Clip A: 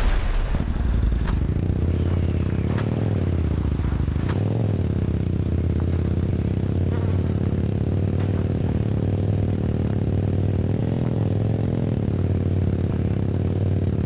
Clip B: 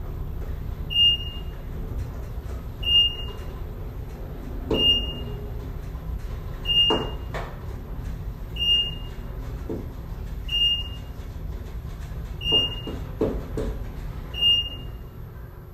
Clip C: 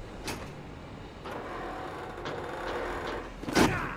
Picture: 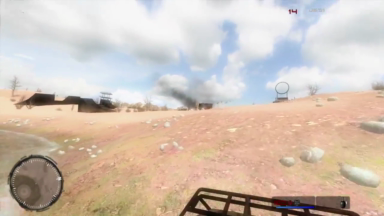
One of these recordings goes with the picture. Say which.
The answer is A